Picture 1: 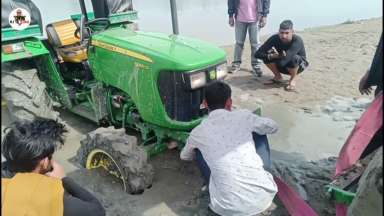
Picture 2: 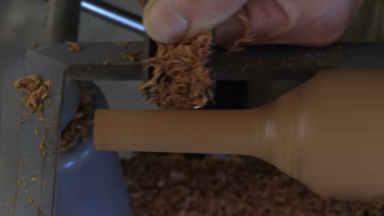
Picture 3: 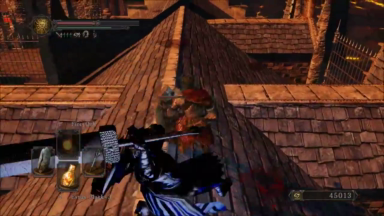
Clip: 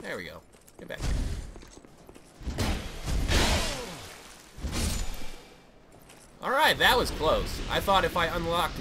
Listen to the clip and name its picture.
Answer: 3